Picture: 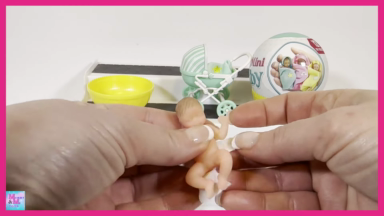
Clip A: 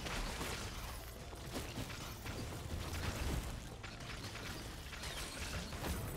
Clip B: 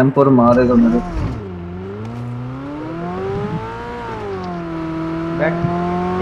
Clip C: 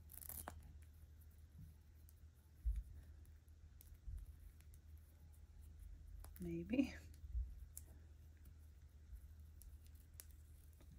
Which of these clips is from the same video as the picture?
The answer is C